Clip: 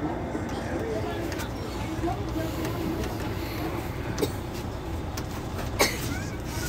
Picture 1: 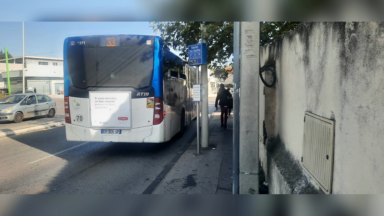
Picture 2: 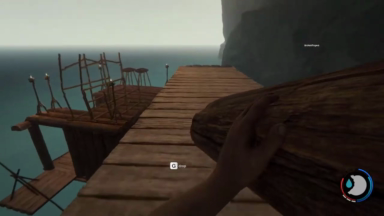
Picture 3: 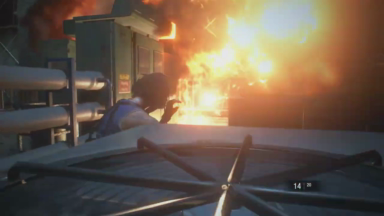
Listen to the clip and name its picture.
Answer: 1